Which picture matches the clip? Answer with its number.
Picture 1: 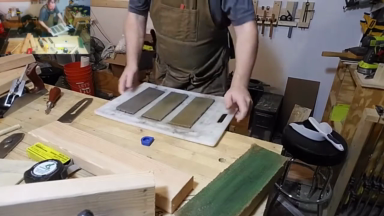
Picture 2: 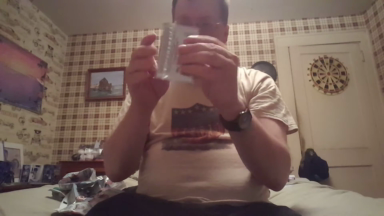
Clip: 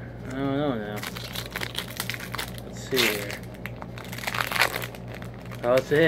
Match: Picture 2